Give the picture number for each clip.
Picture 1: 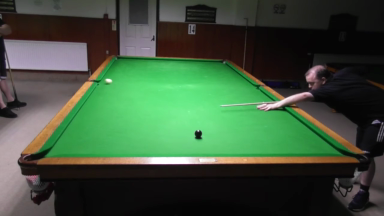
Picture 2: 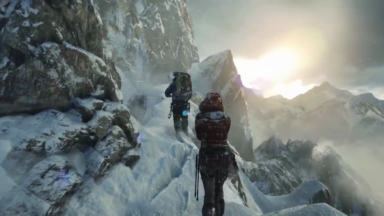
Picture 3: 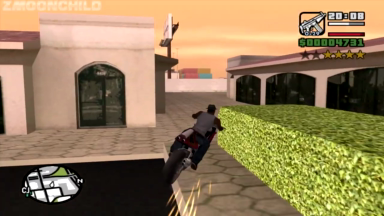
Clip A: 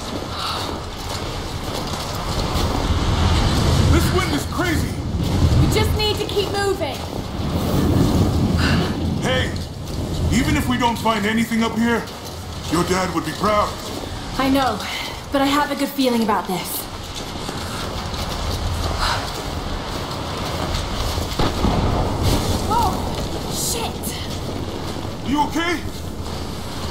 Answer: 2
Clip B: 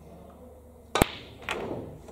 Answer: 1